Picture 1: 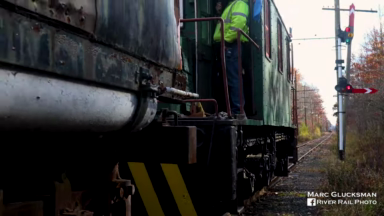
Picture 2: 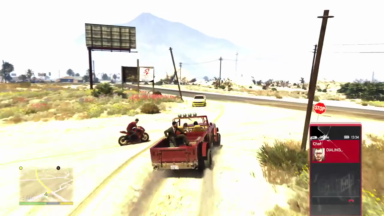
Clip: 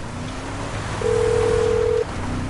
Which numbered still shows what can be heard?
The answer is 2